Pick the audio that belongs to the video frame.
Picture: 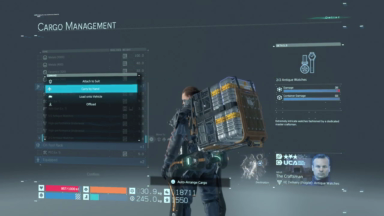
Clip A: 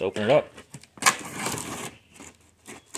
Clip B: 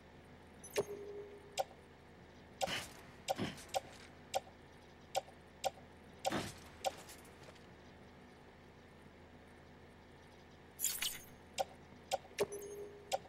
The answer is B